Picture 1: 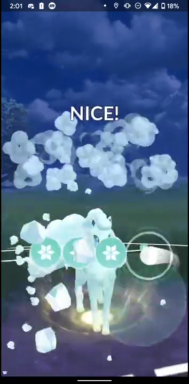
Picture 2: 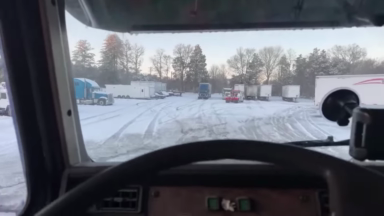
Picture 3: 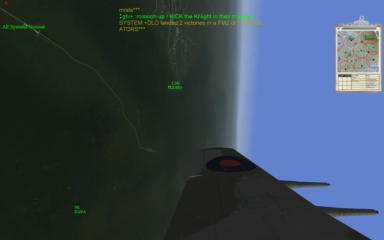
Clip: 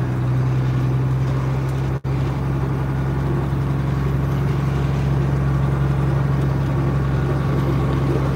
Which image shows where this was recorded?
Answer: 2